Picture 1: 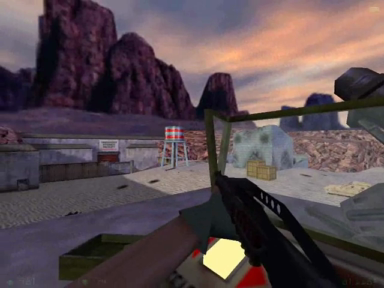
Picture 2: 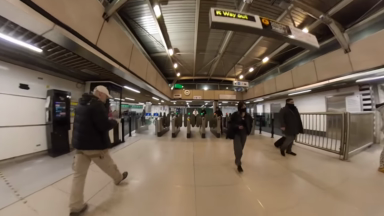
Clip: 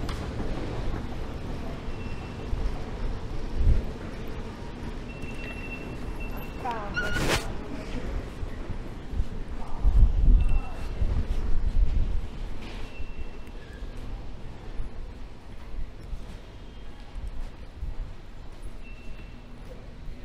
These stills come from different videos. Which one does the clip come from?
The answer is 2